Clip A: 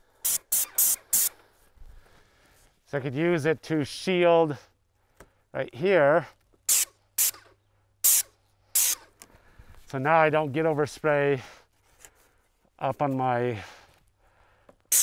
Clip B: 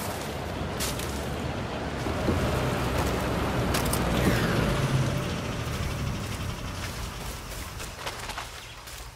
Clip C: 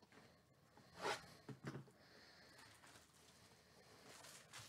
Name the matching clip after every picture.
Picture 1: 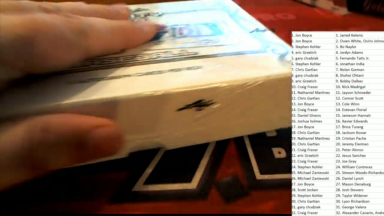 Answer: C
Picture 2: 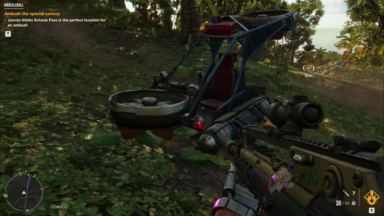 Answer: B